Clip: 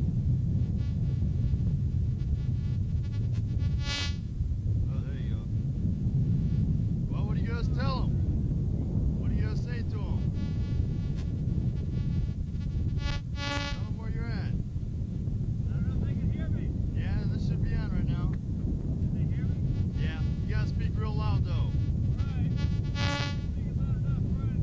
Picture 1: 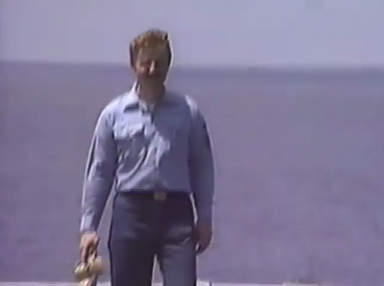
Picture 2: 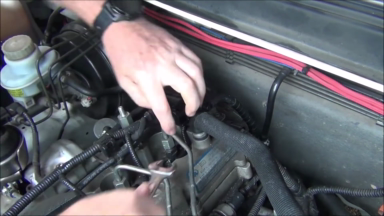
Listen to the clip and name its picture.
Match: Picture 1